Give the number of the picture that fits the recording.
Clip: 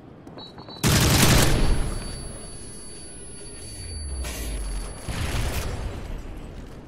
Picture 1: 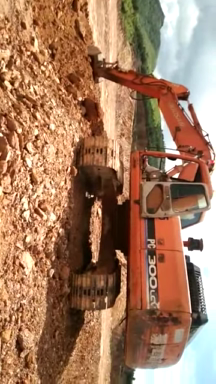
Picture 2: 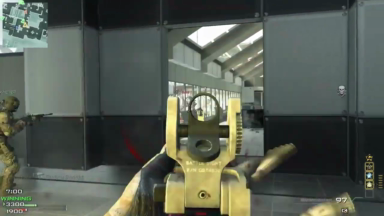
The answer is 2